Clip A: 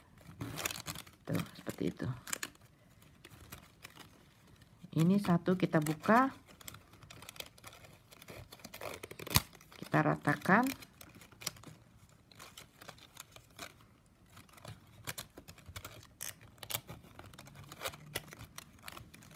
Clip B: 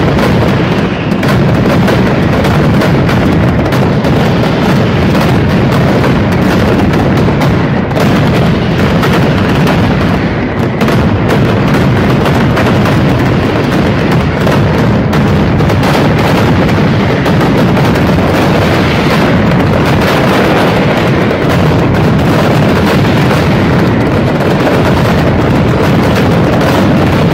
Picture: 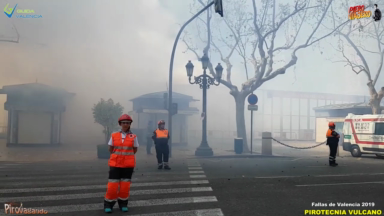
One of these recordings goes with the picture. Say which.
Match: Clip B